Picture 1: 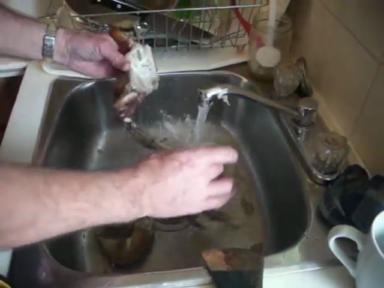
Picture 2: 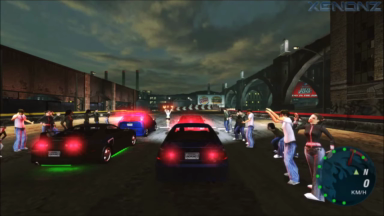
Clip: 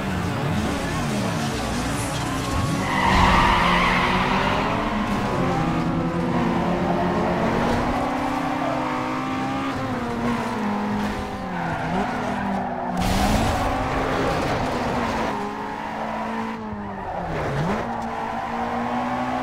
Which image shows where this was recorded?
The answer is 2